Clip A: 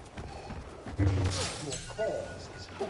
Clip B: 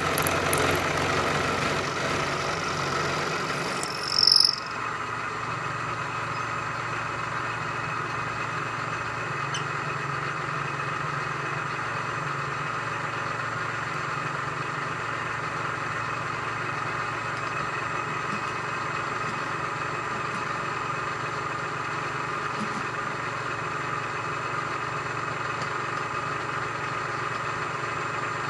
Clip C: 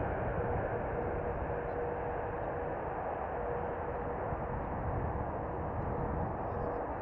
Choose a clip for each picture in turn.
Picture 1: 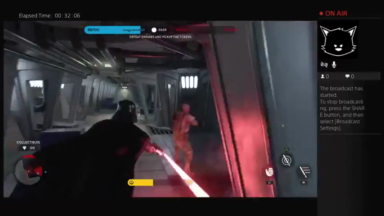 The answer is A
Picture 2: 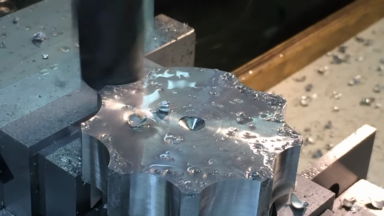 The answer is B